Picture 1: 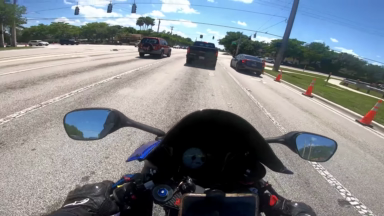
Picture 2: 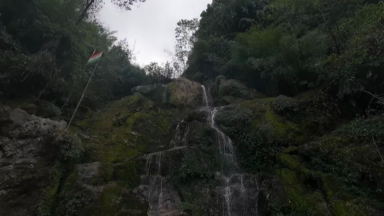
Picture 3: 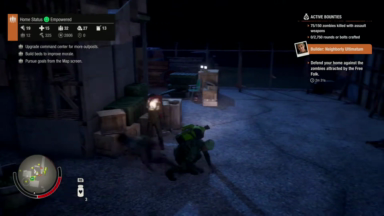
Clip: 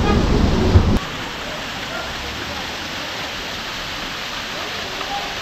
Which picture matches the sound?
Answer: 2